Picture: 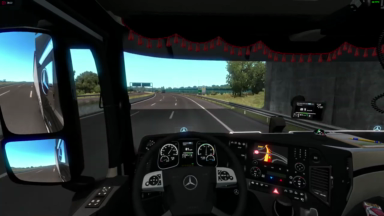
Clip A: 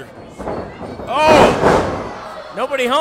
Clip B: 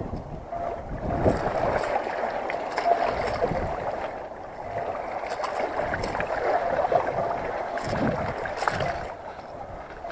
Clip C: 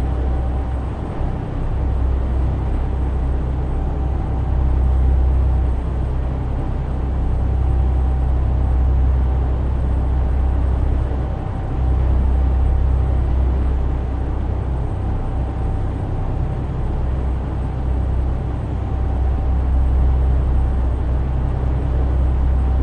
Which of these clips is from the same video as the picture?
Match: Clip C